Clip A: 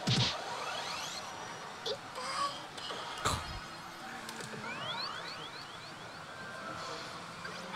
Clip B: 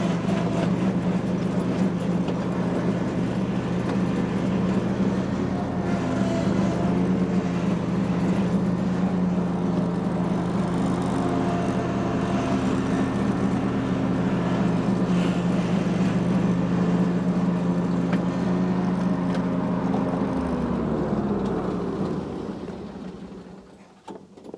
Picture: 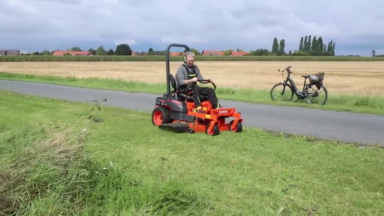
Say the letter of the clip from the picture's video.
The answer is B